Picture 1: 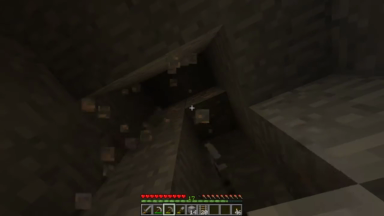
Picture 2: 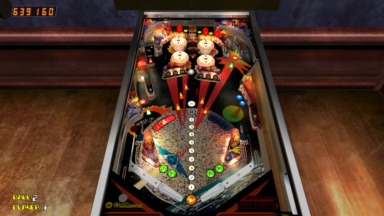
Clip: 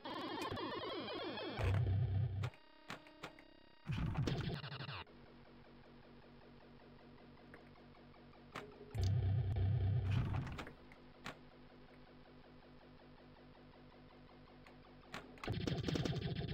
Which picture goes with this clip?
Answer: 2